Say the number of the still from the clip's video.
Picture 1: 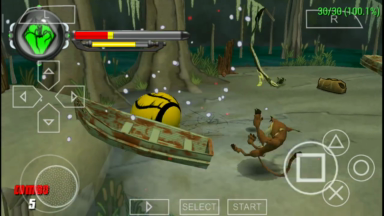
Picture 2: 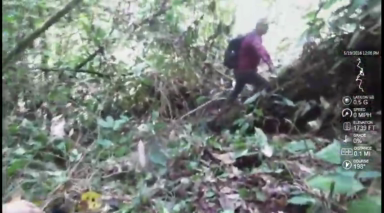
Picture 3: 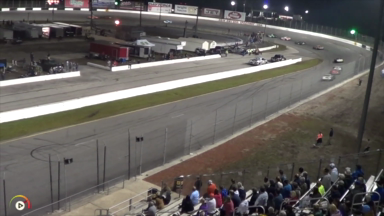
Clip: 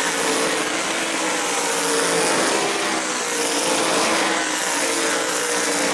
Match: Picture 3